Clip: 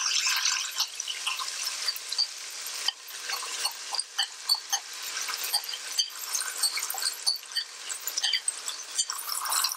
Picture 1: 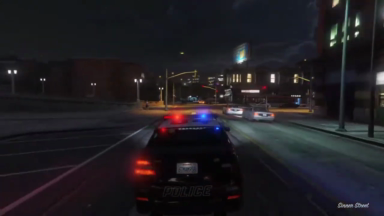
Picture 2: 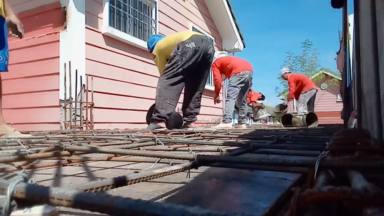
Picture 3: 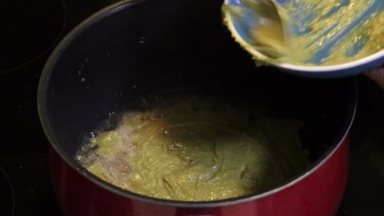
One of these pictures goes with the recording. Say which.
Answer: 3